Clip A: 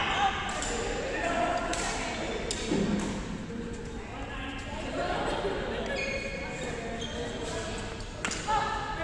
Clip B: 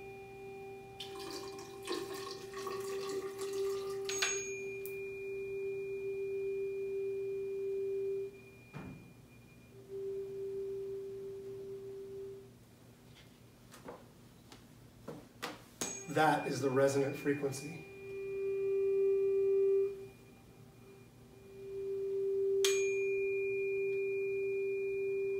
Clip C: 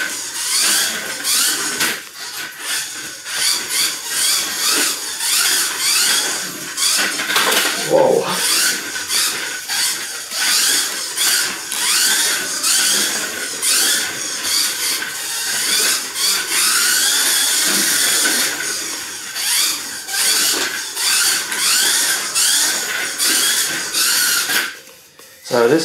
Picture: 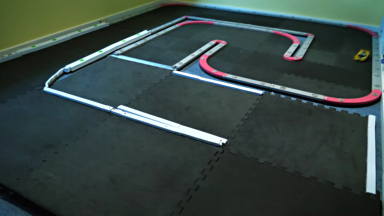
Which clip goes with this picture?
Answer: C